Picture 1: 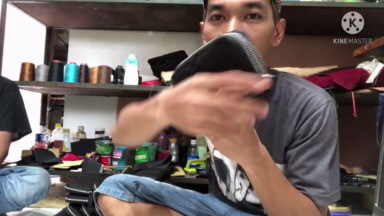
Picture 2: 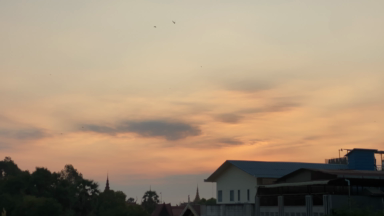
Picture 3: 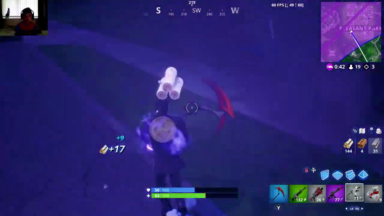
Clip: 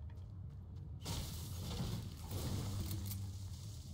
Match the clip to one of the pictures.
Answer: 3